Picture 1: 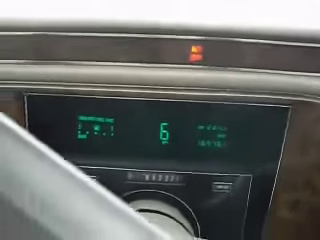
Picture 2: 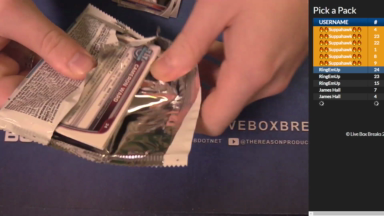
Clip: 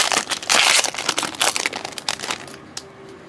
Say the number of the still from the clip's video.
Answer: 2